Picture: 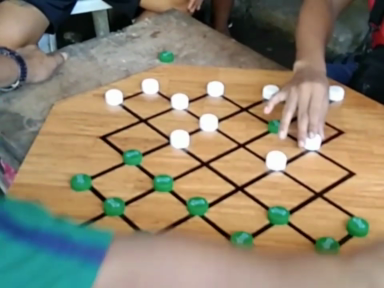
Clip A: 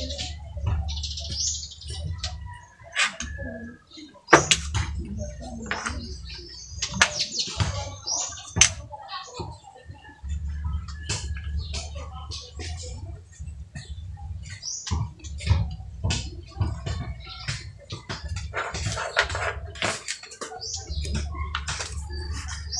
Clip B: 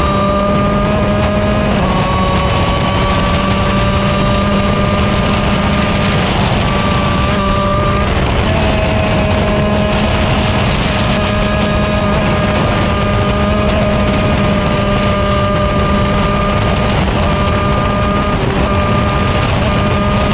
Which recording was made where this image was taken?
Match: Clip A